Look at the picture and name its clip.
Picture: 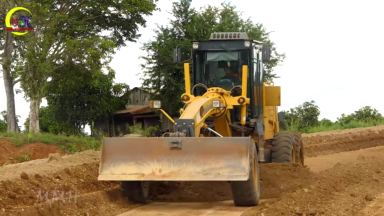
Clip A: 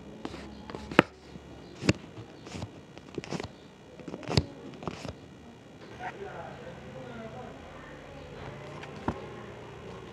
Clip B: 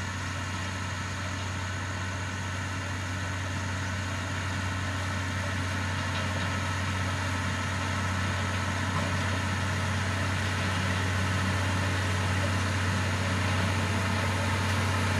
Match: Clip B